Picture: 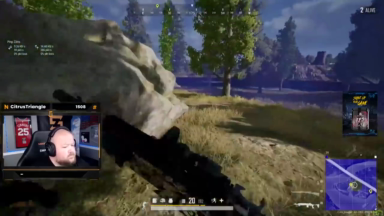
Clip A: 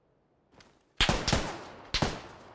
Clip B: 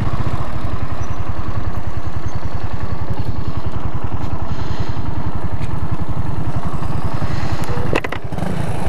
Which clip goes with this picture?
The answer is A